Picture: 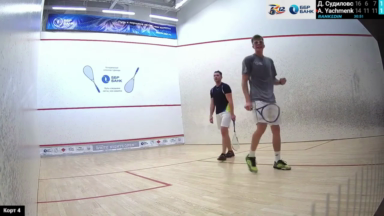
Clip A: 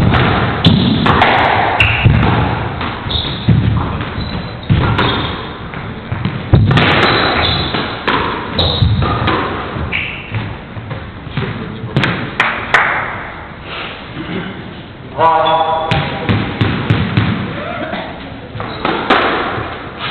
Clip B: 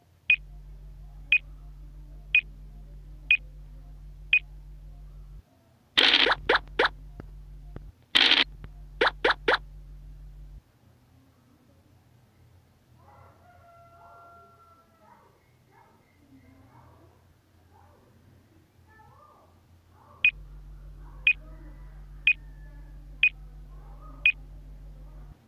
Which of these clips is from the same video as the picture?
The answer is A